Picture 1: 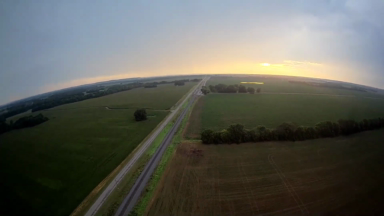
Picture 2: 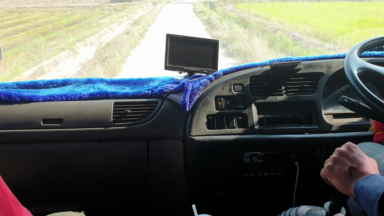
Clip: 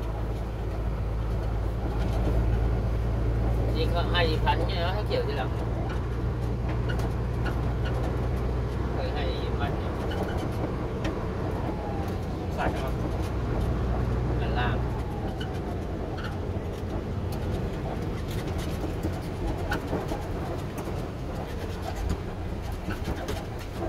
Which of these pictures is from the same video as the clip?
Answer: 2